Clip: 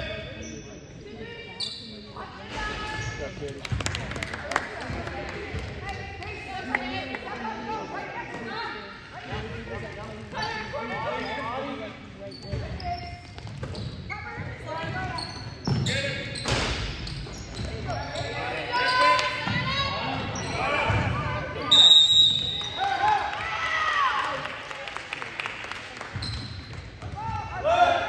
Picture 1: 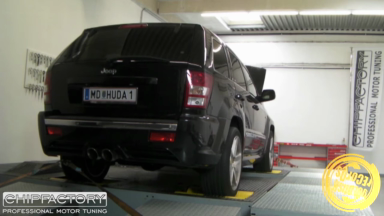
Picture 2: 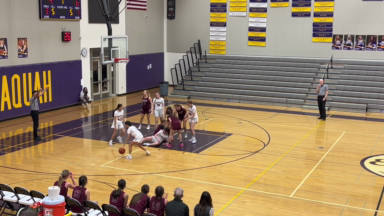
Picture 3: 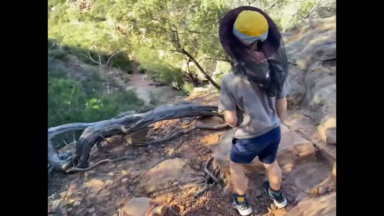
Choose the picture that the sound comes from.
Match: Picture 2